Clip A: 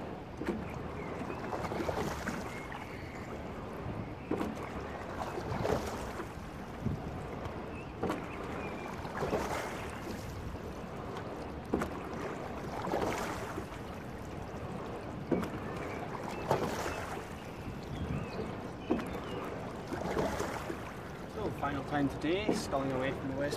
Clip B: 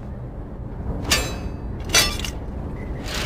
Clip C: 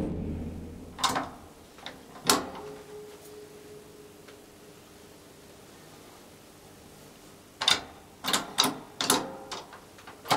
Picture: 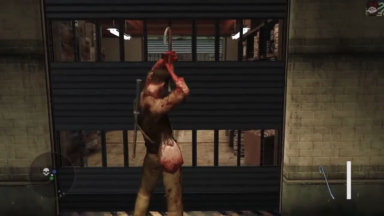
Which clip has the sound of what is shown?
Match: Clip B